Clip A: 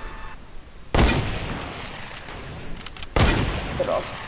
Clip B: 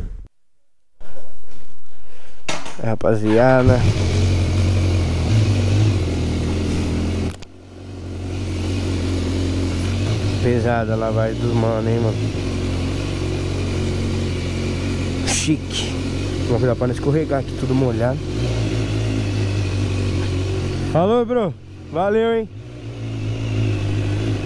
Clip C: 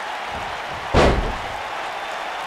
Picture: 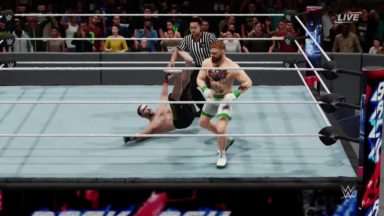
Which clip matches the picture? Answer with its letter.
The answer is C